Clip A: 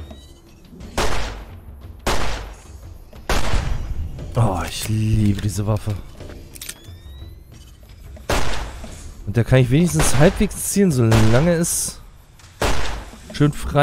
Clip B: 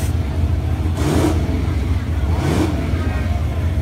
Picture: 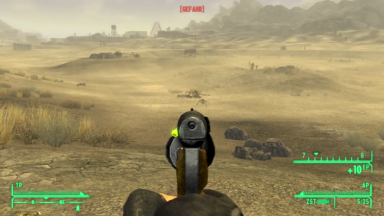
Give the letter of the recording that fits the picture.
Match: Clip A